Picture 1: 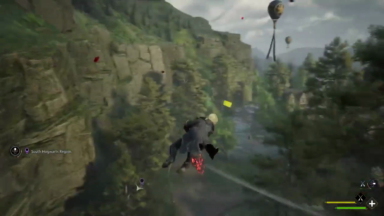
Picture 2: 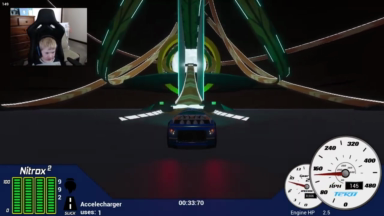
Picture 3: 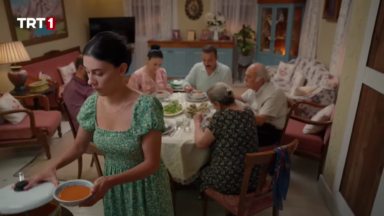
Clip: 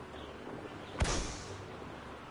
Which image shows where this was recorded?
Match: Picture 1